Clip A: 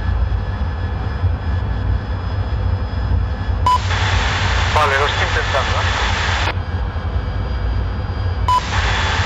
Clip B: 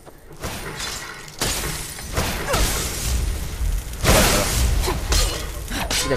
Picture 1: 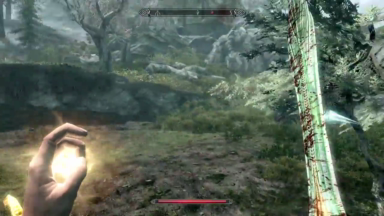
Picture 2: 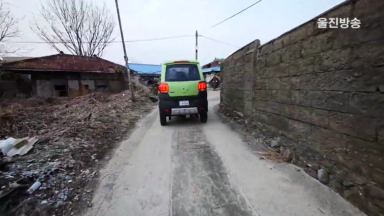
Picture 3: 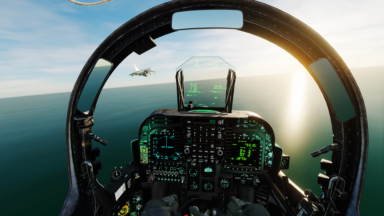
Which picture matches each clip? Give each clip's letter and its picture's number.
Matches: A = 3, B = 1